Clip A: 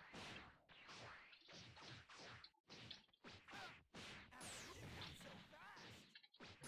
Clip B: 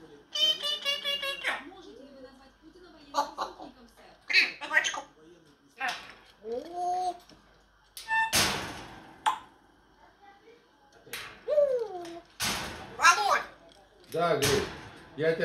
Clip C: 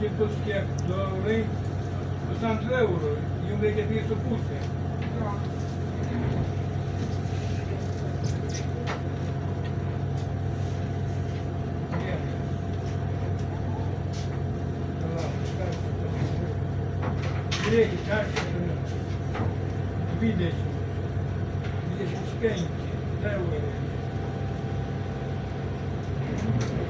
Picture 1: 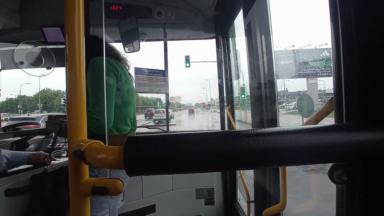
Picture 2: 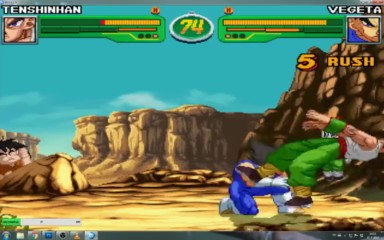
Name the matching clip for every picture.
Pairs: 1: C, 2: A